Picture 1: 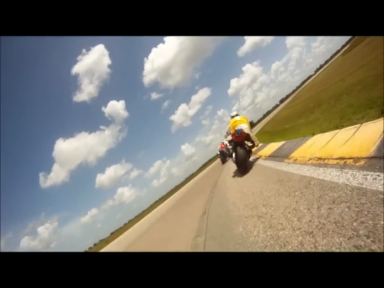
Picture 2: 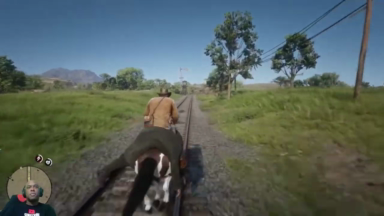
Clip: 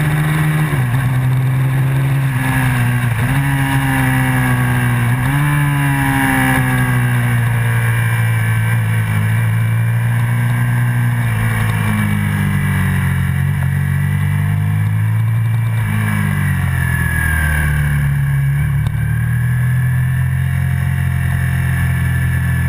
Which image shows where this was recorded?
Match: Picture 1